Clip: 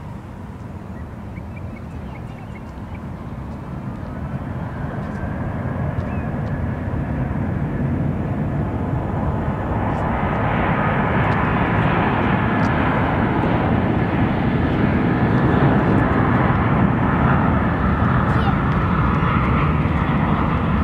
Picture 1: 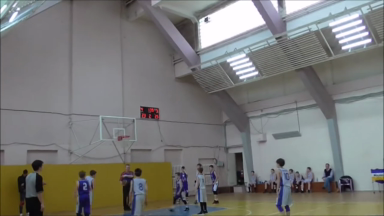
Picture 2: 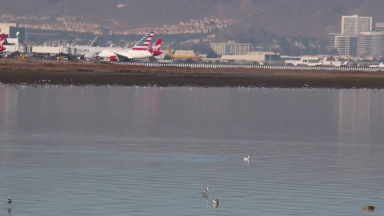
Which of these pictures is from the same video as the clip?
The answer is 2